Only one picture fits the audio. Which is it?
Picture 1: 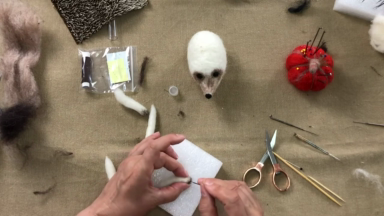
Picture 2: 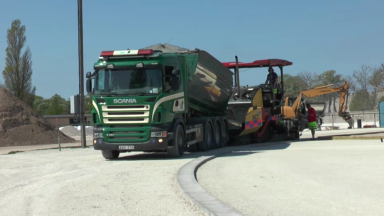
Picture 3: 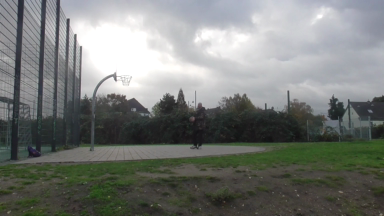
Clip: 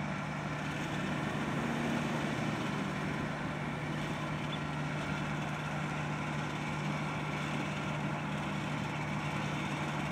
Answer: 2